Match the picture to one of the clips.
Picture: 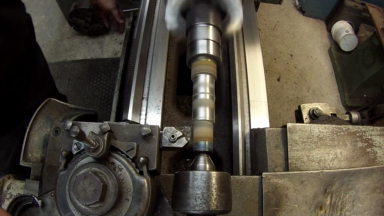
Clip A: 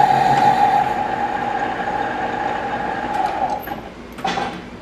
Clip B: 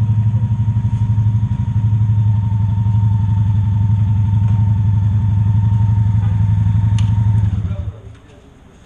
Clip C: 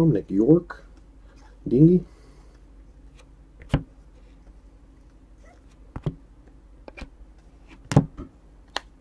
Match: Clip A